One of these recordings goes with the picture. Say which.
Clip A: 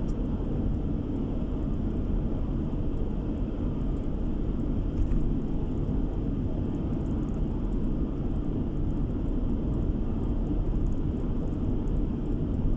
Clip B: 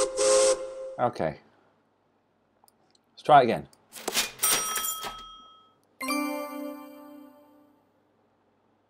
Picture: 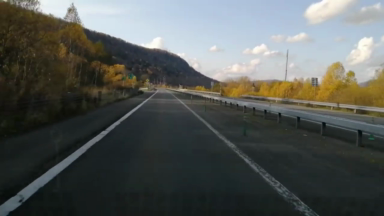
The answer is A